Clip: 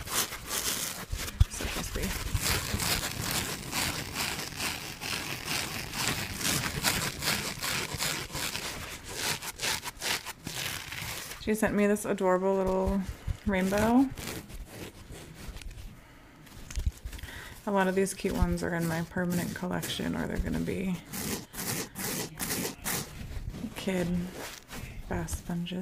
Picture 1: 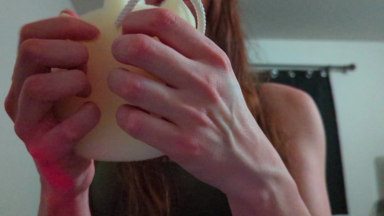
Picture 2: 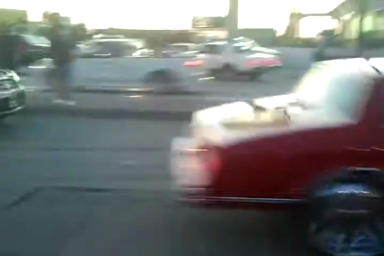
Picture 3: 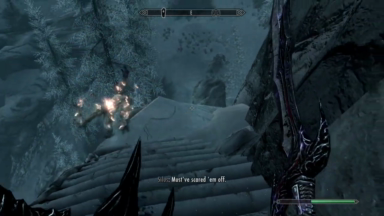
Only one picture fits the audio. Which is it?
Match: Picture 1